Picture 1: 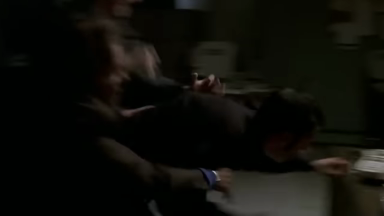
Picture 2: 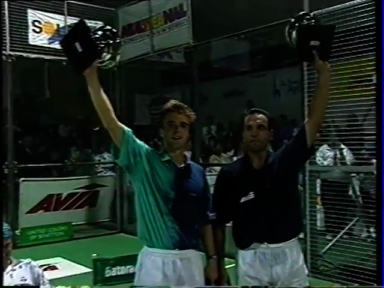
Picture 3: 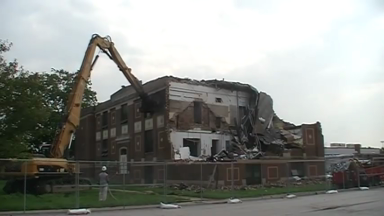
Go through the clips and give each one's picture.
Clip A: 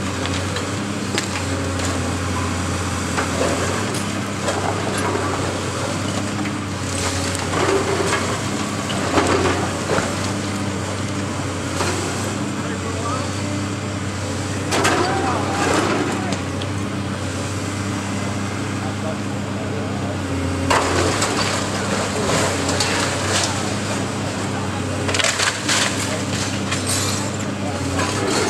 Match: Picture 3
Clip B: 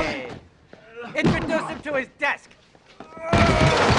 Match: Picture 1